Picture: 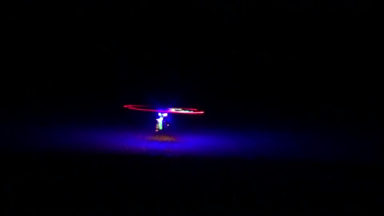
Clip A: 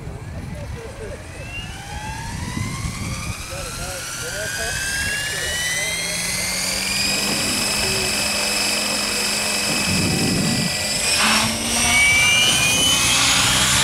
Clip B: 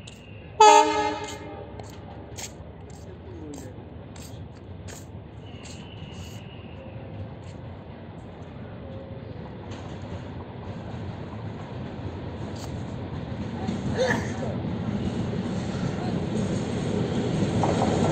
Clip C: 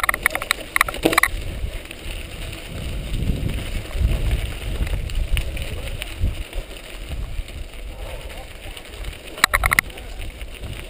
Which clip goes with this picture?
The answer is A